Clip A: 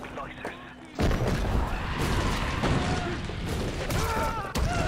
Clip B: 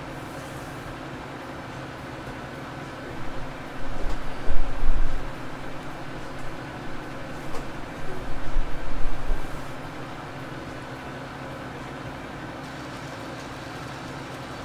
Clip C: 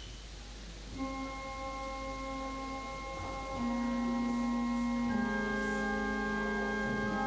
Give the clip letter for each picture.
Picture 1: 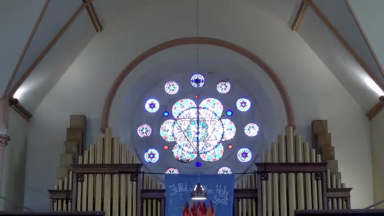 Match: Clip C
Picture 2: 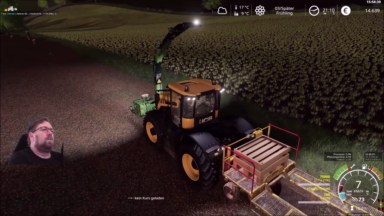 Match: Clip B